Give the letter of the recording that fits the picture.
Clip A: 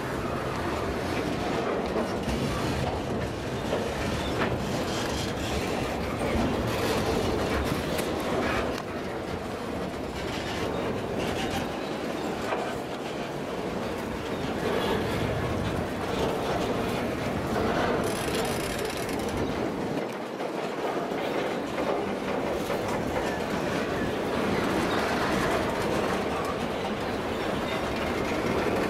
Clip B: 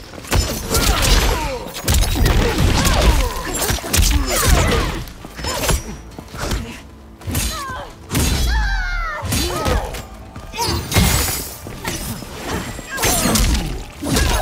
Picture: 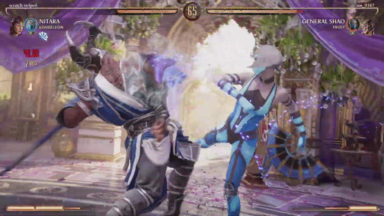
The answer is B